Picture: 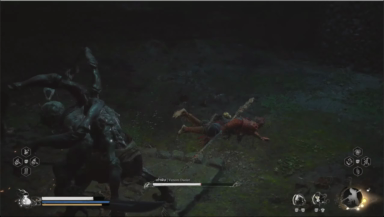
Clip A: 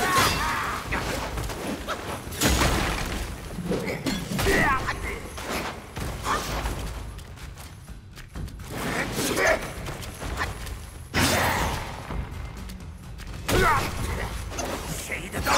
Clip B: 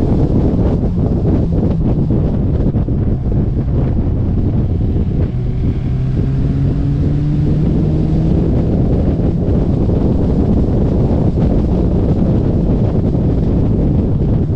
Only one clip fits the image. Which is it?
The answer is A